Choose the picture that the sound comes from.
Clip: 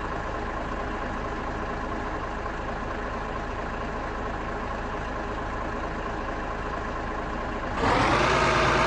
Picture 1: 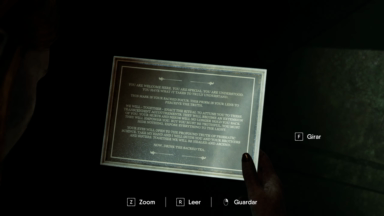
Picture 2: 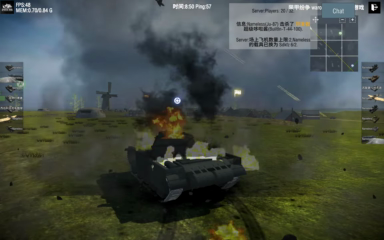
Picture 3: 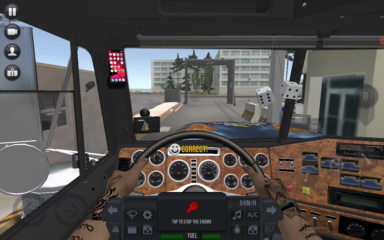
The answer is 3